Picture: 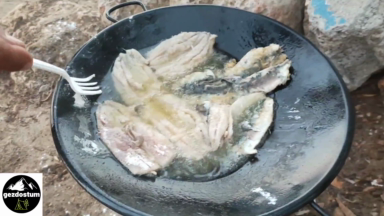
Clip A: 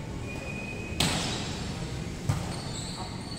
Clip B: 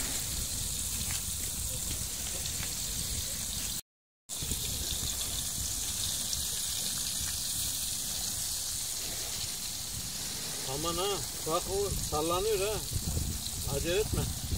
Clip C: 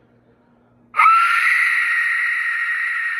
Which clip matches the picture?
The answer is B